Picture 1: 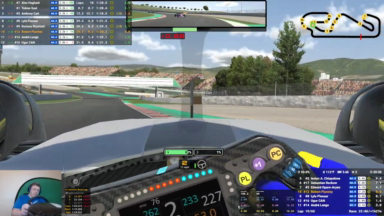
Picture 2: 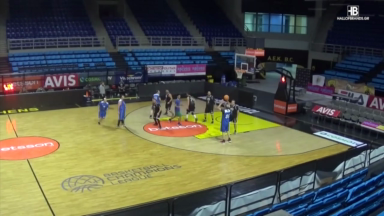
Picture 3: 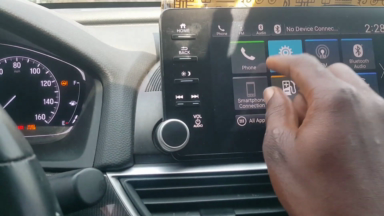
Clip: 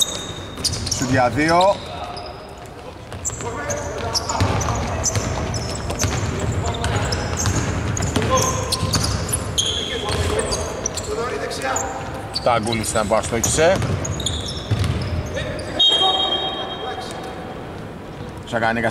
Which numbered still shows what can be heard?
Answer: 2